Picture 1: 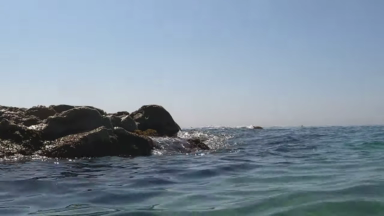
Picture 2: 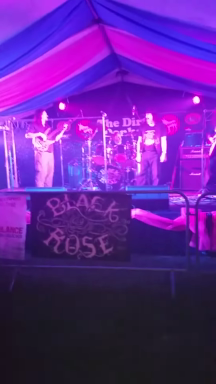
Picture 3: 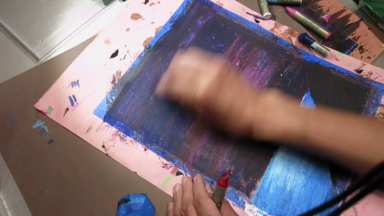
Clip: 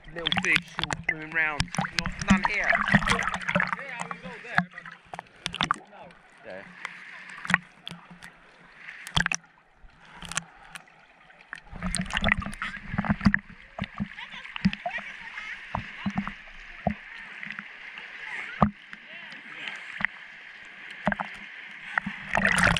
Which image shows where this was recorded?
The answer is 1